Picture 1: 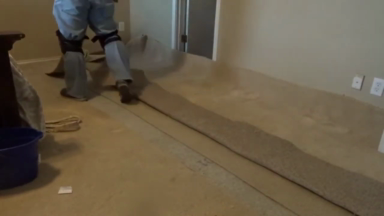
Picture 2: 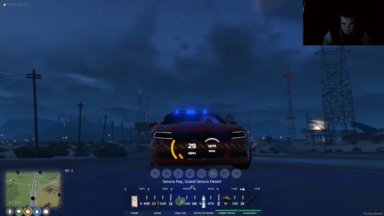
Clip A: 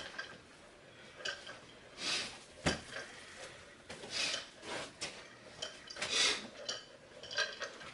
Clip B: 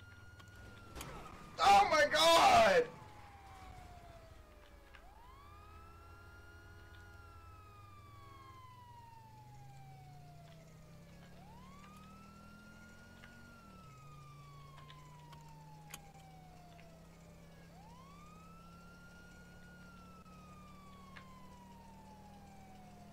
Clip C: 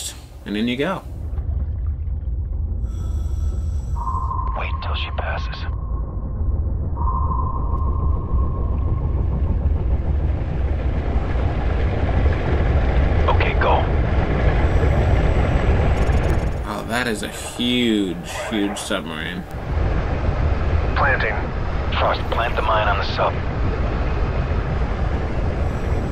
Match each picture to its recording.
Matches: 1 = A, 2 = B